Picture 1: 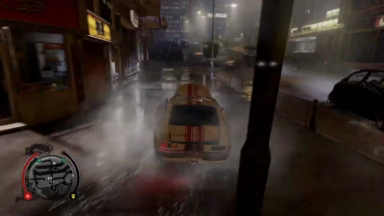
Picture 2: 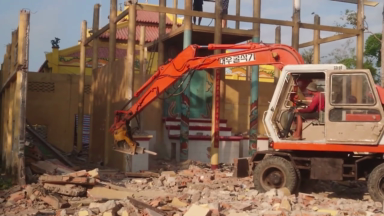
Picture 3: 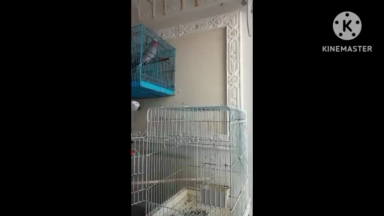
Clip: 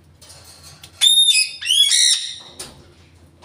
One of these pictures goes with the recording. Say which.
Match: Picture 3